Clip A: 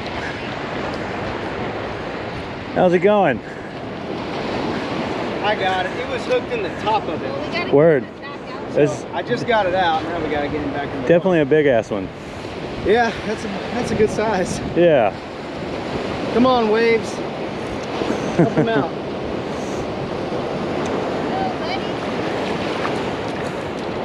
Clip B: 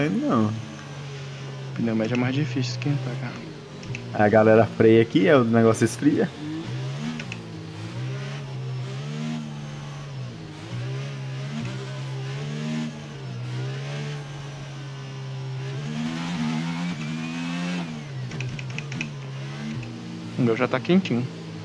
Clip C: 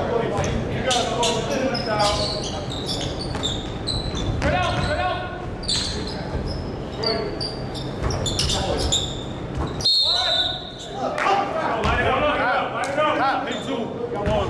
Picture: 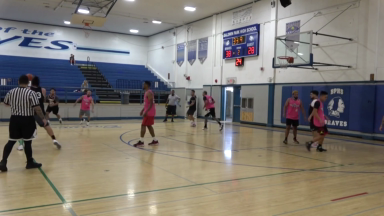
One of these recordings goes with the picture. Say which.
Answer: C